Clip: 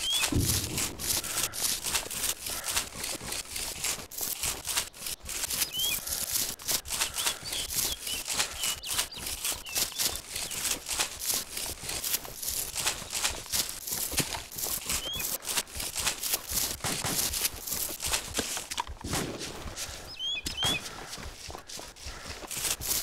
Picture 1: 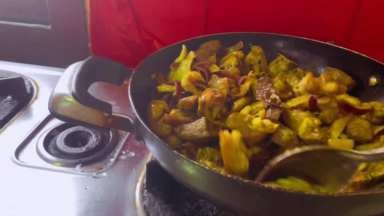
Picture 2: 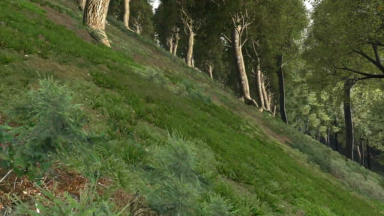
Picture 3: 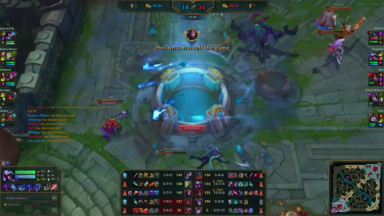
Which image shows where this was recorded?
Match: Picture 2